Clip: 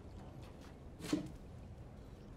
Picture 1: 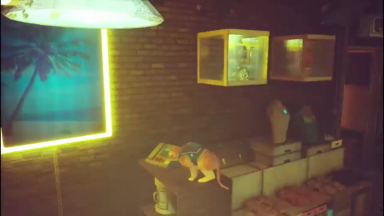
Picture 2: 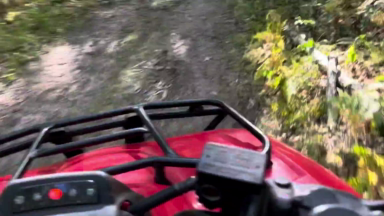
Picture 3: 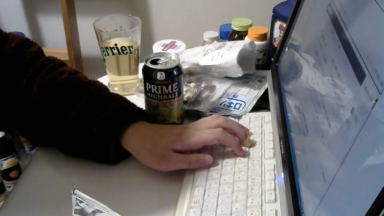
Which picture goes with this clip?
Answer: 1